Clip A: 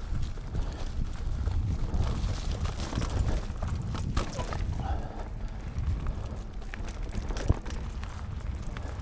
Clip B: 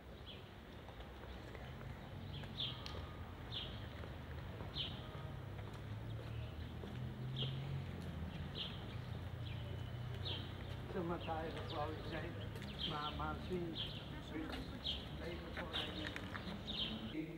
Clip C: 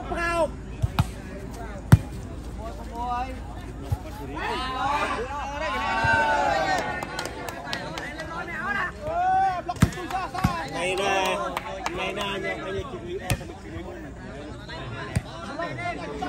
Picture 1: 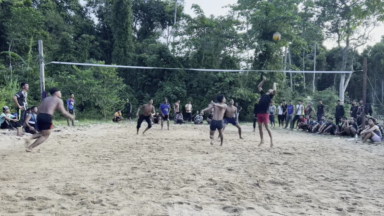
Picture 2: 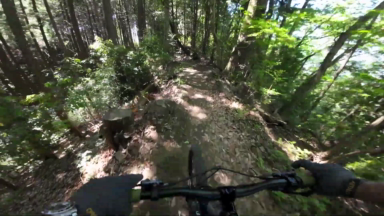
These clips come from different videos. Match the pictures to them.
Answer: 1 C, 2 A